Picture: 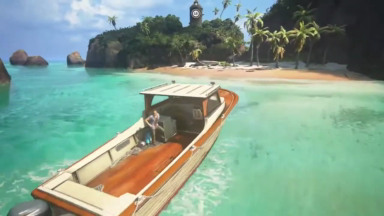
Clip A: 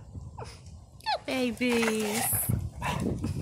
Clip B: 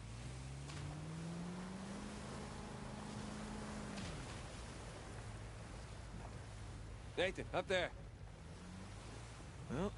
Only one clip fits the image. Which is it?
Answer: B